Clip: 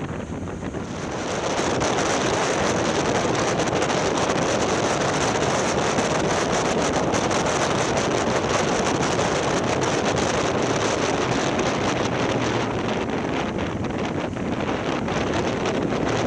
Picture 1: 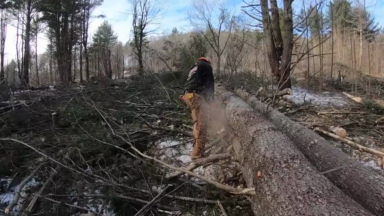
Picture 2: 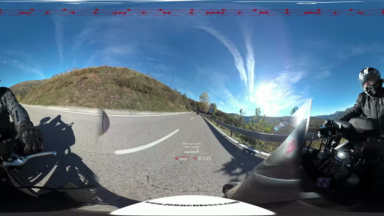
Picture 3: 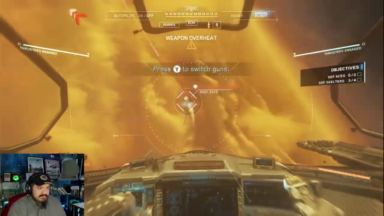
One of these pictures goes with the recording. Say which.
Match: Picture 2